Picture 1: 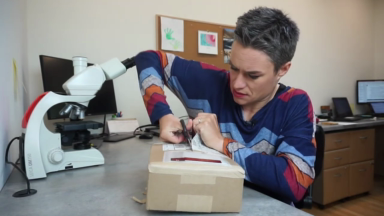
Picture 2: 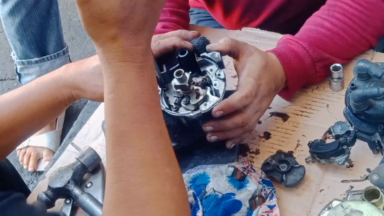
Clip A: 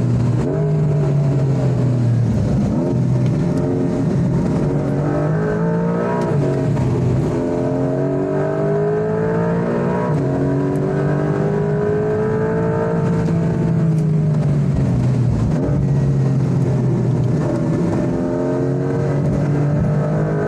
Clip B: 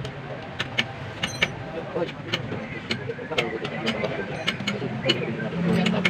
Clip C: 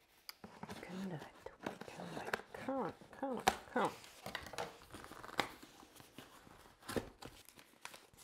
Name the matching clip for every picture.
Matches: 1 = C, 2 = B